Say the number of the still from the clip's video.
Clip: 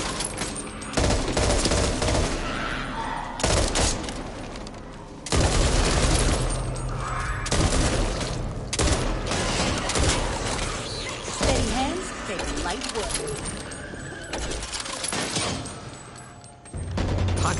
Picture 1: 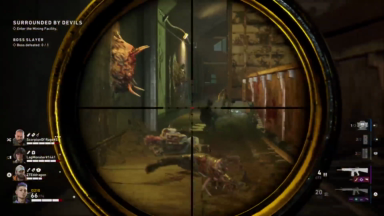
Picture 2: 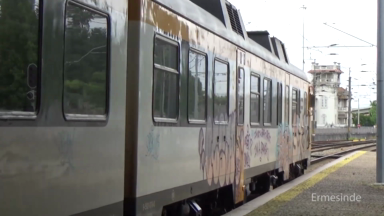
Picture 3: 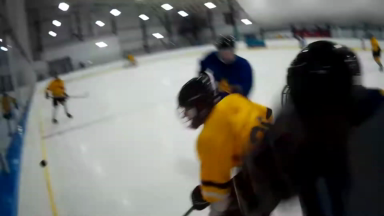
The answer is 1